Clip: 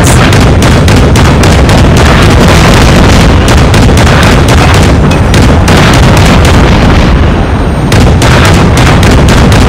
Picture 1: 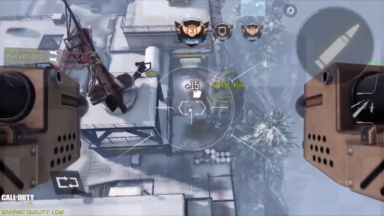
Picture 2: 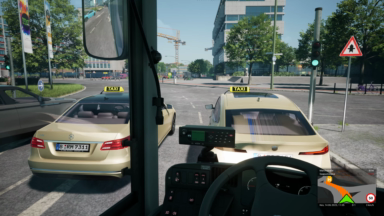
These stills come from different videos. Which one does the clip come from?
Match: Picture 1